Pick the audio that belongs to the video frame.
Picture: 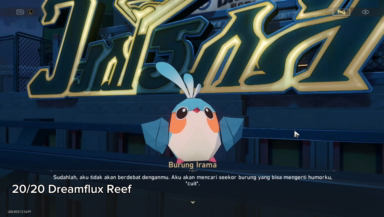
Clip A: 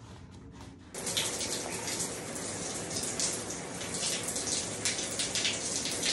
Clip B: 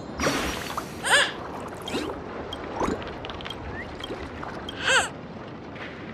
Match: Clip B